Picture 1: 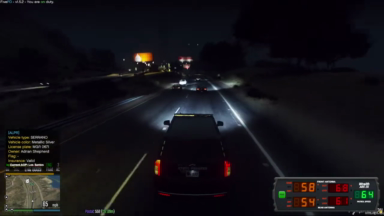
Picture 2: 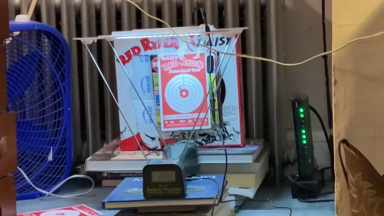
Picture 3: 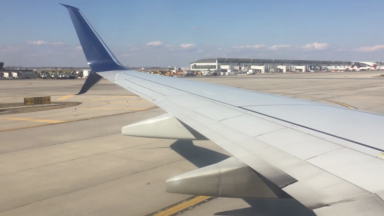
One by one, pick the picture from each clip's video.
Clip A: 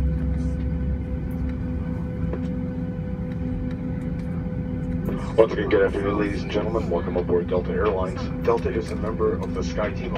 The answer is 3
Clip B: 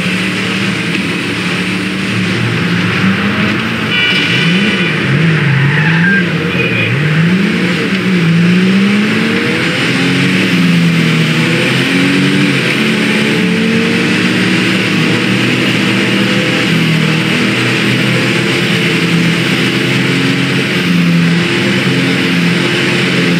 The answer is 1